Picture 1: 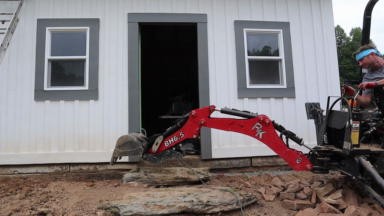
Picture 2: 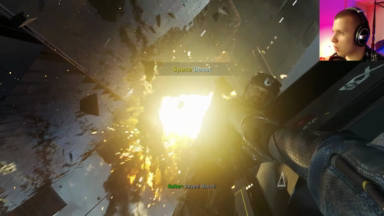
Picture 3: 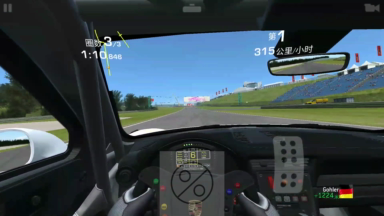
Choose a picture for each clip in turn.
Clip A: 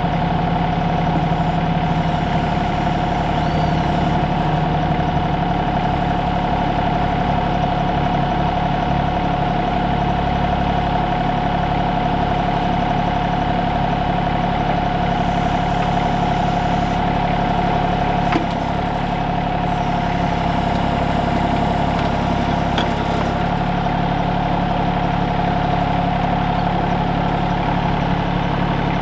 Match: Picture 1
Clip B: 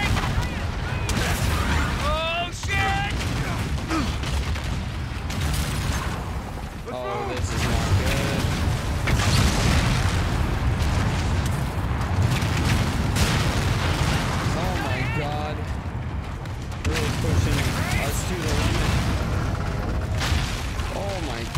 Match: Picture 2